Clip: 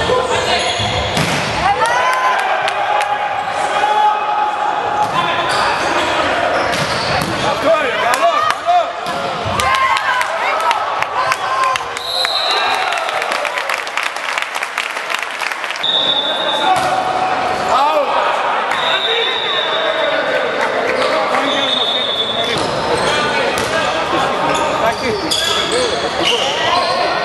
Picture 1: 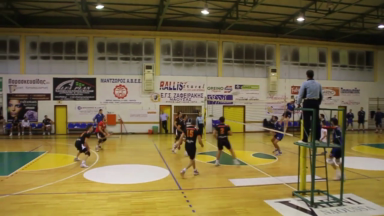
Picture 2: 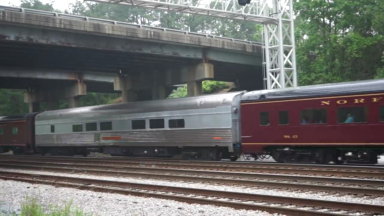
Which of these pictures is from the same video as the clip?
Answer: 1